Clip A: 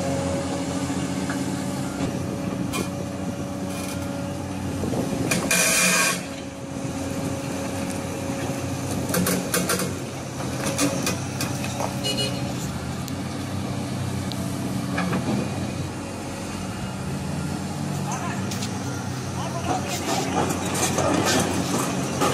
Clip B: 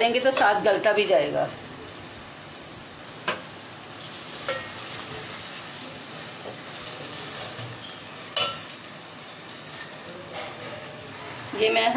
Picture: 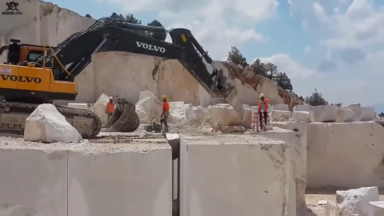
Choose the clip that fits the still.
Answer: A